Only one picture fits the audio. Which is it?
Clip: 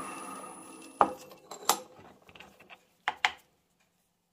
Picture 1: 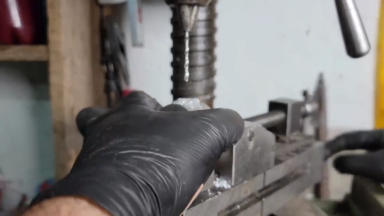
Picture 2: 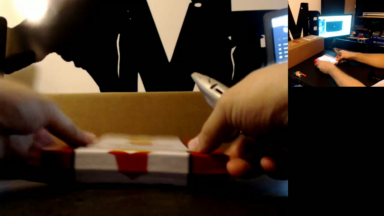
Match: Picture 1